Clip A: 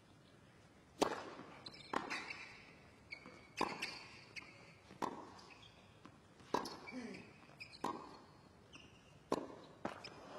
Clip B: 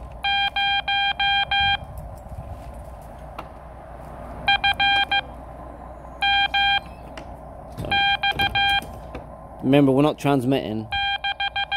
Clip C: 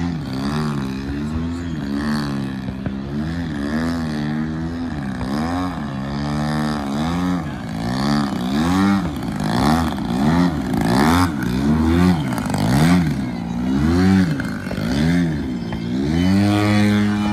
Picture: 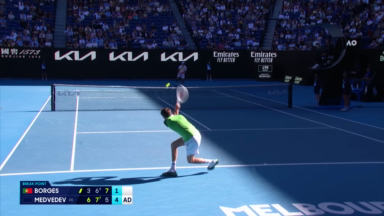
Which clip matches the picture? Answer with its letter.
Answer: A